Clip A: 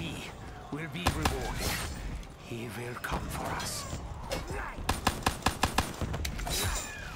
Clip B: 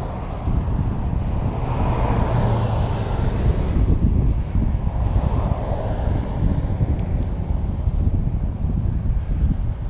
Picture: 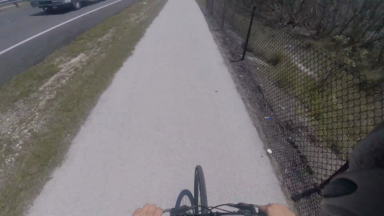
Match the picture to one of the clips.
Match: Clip B